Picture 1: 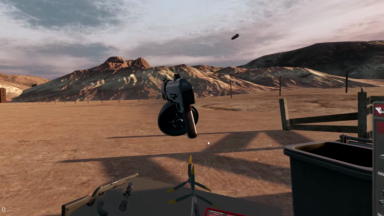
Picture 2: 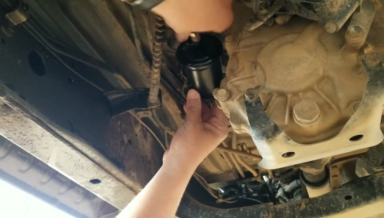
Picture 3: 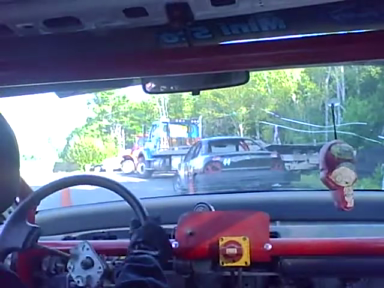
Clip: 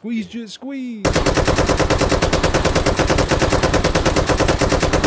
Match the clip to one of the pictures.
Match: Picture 1